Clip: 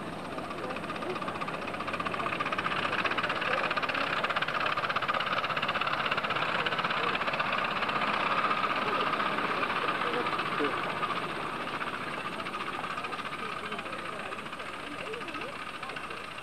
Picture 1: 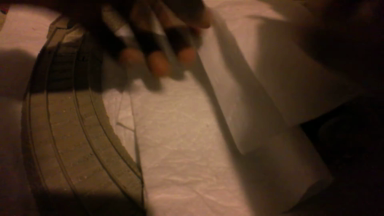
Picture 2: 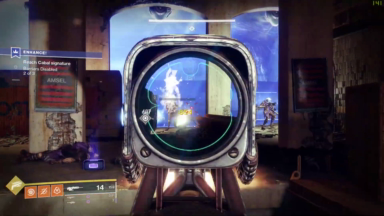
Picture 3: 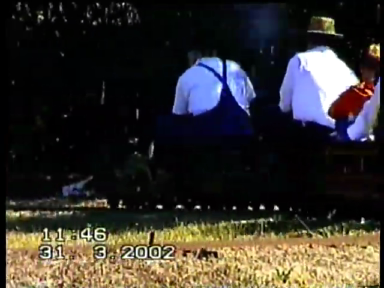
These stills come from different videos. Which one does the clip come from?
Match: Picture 3